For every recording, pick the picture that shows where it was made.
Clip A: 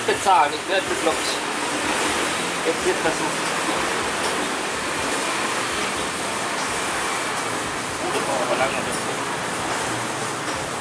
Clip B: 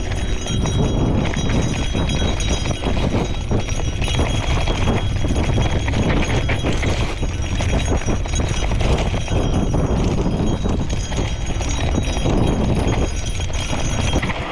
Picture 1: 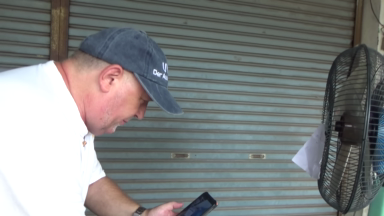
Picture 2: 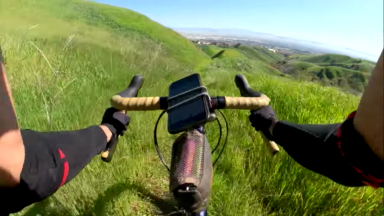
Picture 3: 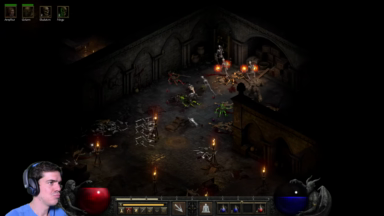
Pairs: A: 1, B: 2